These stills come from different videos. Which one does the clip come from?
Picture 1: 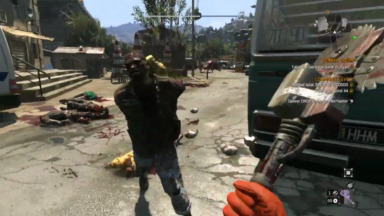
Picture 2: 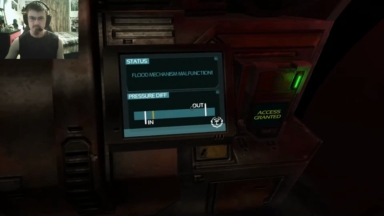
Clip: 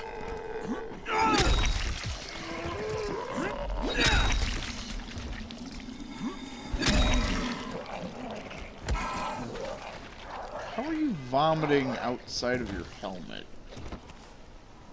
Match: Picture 1